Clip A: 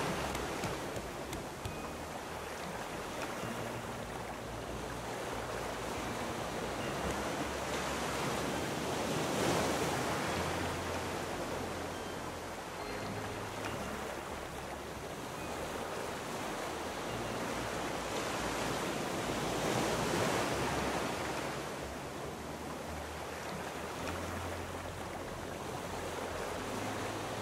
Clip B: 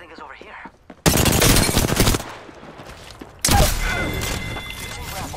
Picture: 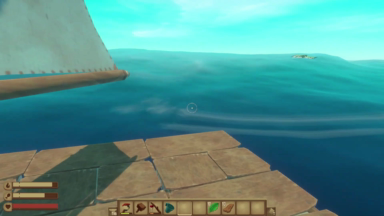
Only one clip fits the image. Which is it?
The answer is A